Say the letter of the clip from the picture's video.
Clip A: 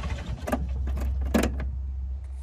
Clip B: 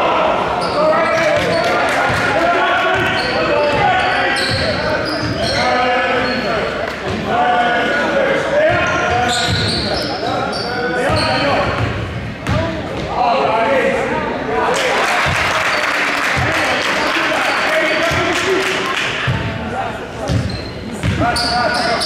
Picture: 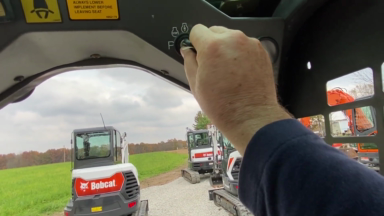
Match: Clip A